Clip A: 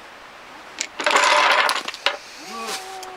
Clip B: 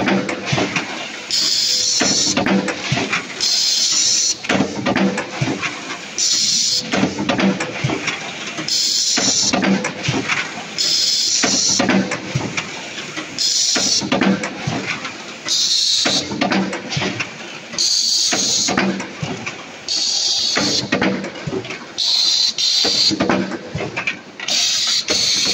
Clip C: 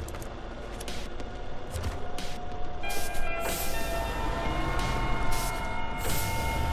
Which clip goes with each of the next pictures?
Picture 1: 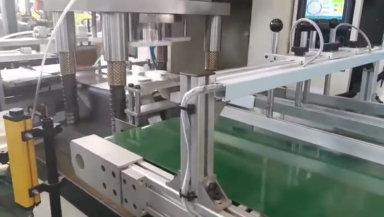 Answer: B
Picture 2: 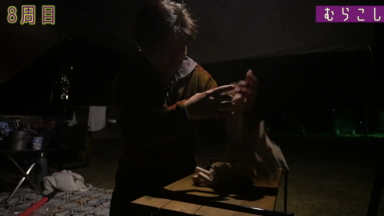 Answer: A